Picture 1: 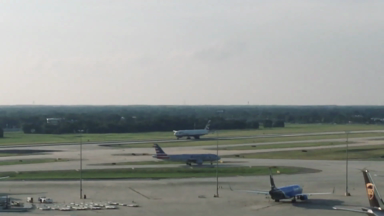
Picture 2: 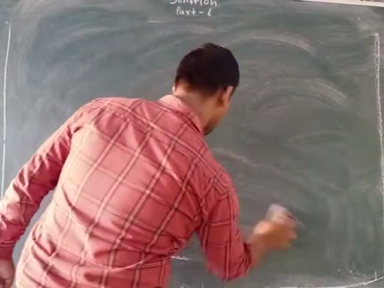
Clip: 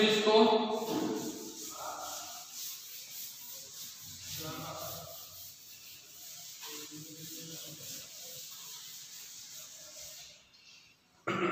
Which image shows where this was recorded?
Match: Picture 2